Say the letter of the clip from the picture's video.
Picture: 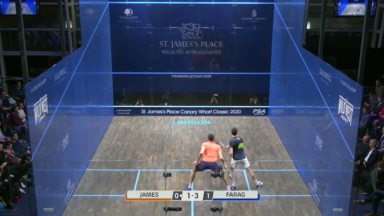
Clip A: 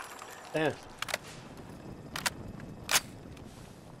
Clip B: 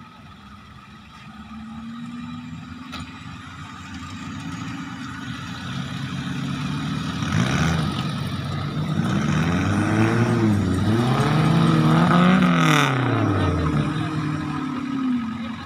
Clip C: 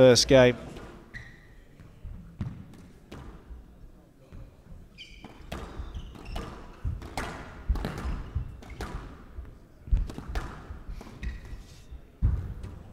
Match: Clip C